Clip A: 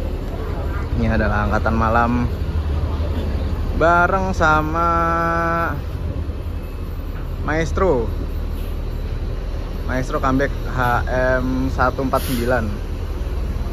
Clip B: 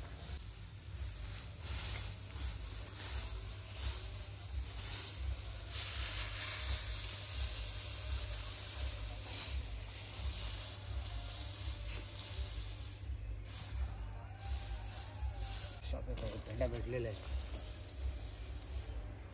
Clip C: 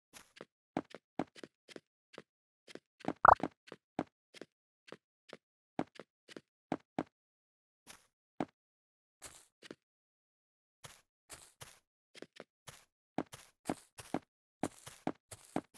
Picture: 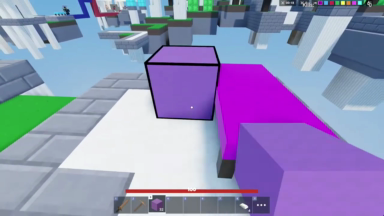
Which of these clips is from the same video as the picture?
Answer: C